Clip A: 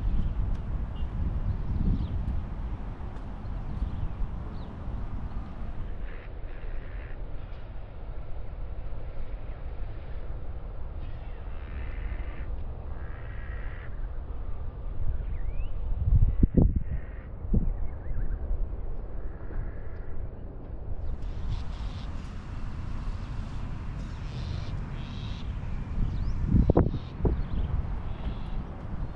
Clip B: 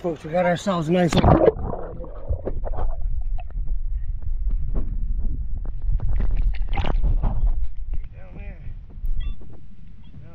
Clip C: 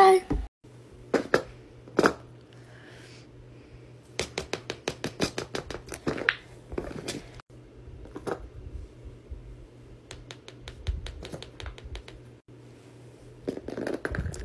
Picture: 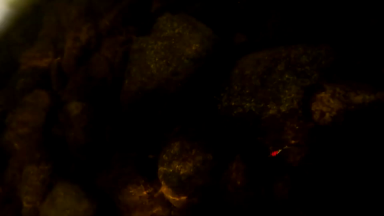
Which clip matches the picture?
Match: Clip B